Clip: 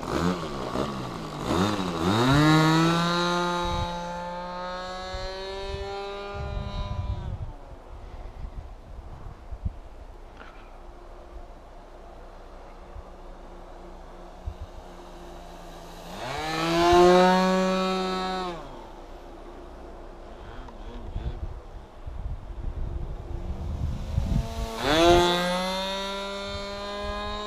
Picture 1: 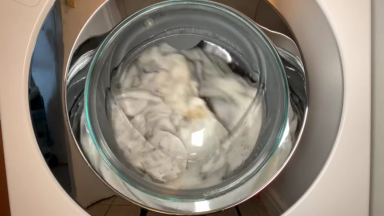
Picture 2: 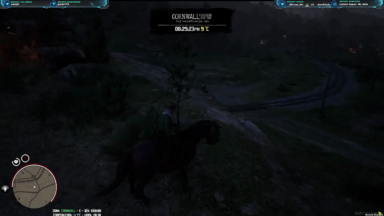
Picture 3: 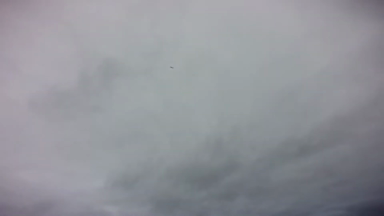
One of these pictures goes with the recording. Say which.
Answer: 3